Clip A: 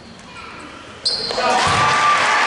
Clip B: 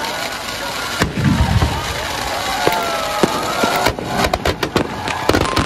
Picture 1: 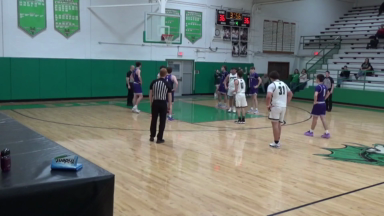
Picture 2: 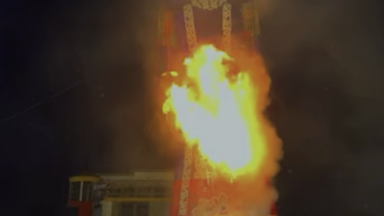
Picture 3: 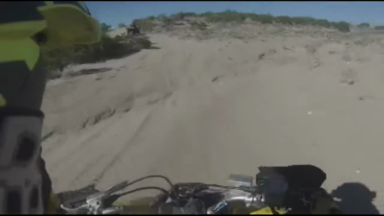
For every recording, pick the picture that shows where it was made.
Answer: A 1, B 2